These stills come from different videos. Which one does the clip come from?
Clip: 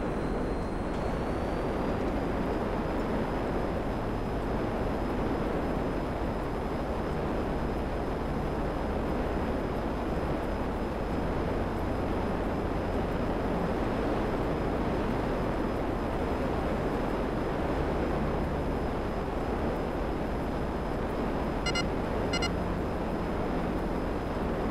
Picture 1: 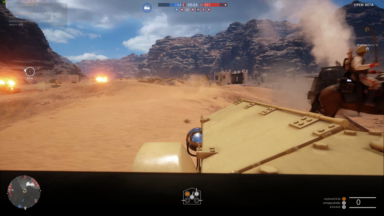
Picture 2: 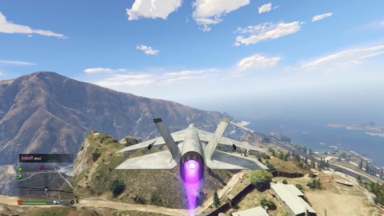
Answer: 2